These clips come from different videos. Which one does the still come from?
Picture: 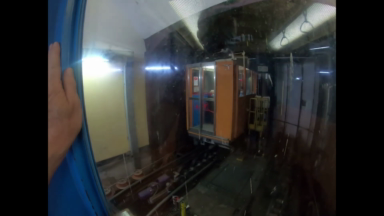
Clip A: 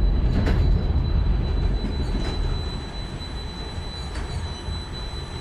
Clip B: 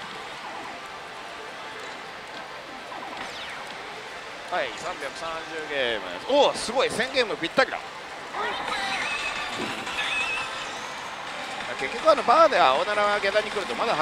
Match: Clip A